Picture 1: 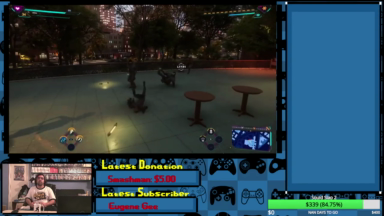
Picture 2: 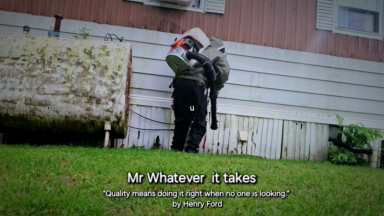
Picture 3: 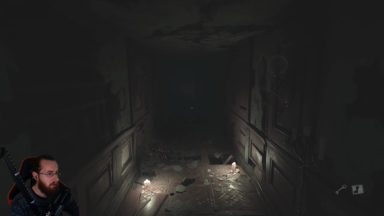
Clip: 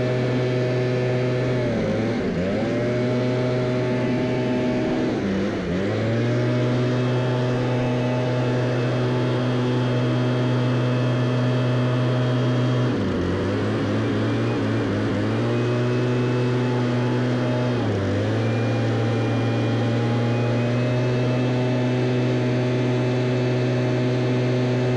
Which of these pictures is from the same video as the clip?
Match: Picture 2